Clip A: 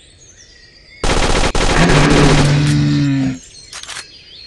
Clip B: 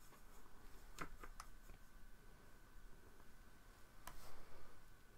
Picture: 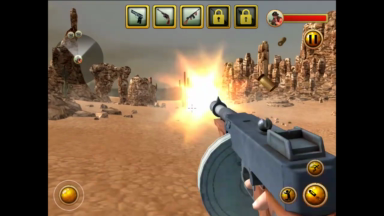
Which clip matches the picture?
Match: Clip A